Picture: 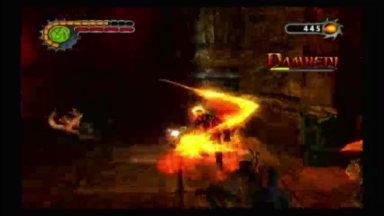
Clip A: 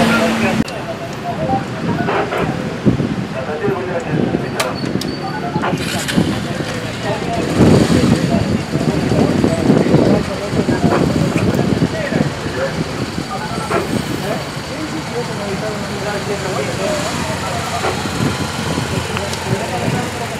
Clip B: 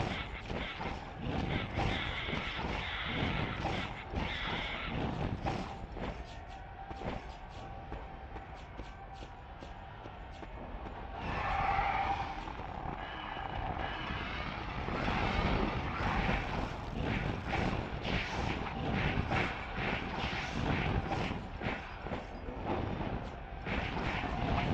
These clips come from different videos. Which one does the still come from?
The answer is B